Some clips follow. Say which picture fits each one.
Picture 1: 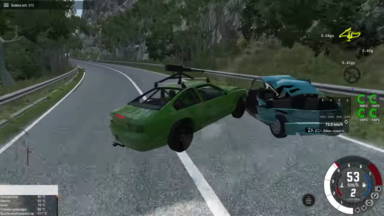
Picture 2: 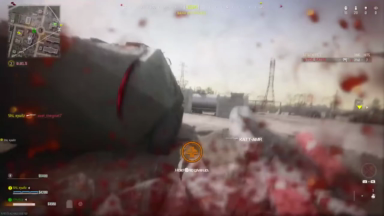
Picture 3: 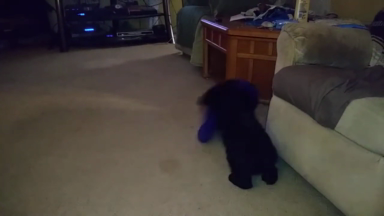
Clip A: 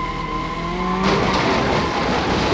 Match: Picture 1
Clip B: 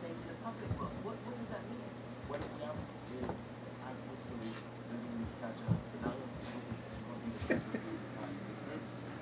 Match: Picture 3